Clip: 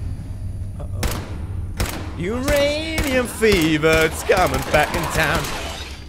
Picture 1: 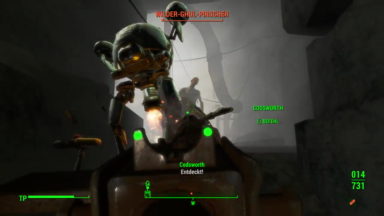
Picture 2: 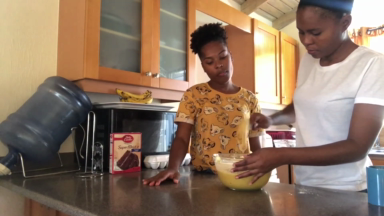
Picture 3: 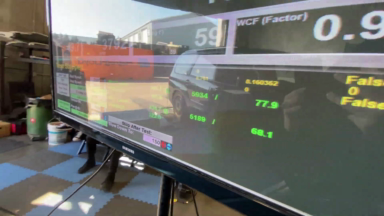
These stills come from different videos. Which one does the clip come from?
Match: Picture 1